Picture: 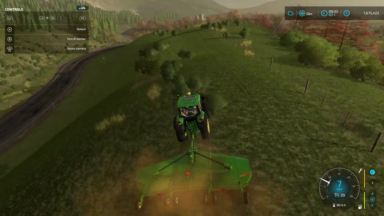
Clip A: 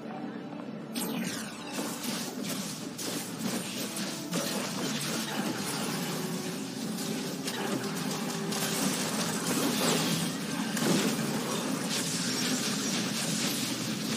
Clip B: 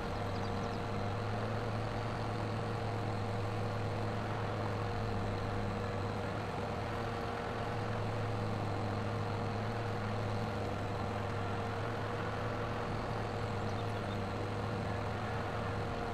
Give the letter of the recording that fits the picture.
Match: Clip B